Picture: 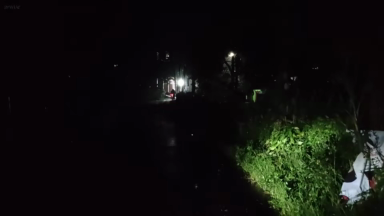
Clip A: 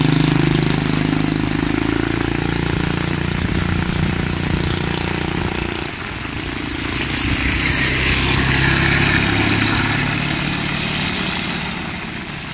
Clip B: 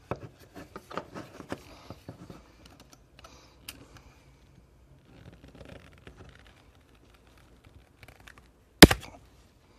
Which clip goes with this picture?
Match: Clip A